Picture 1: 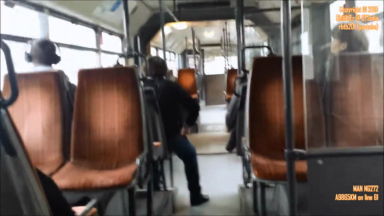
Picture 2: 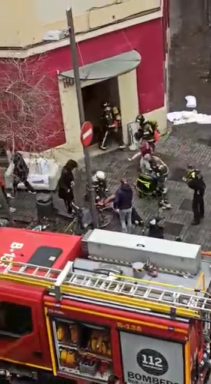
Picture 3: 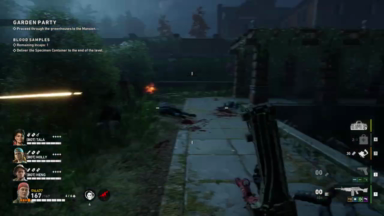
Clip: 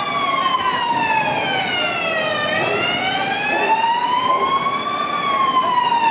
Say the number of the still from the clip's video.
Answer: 2